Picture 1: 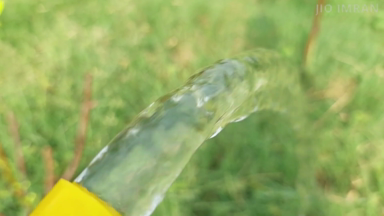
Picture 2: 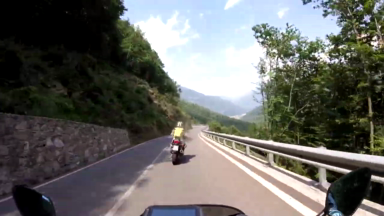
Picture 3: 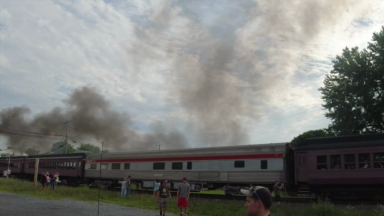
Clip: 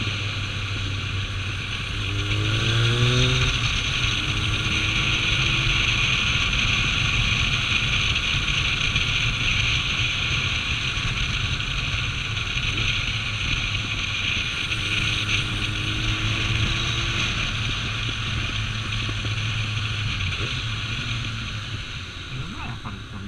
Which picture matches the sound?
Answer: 2